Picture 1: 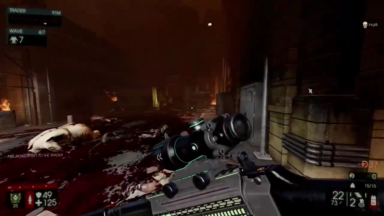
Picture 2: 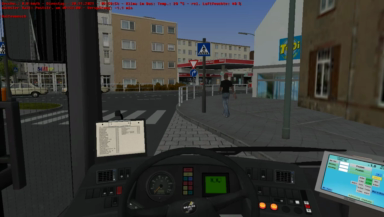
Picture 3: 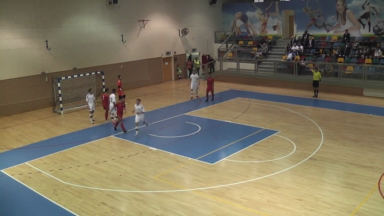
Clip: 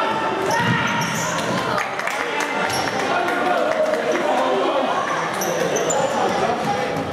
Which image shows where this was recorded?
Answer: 3